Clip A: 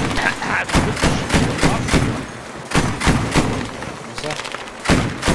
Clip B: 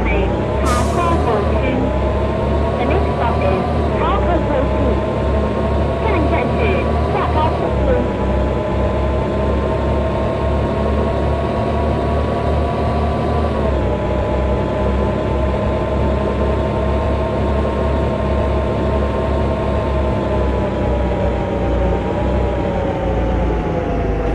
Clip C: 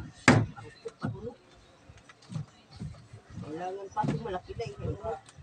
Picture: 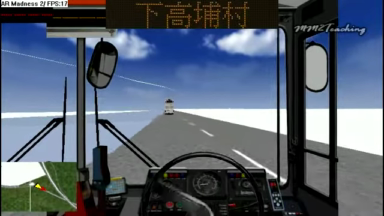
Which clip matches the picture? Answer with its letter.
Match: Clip B